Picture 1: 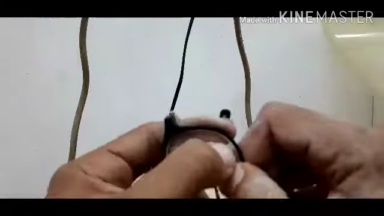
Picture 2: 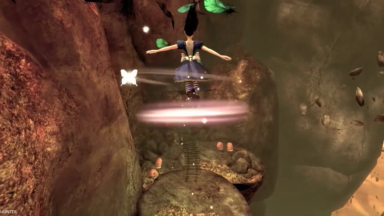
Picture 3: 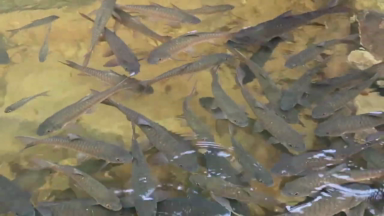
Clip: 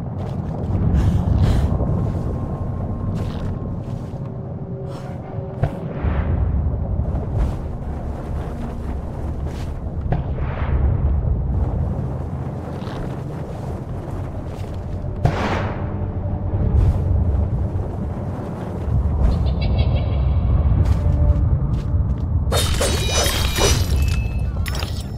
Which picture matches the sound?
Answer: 2